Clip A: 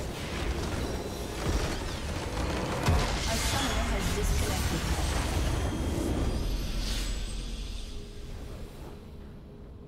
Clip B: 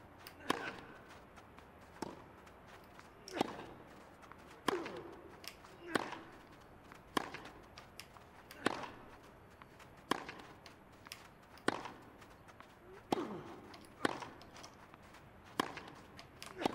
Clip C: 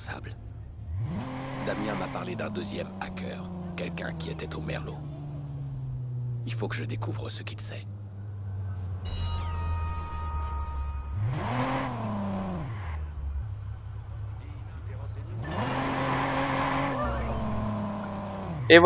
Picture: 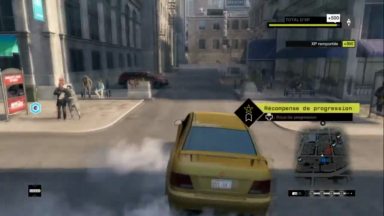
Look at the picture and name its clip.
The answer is C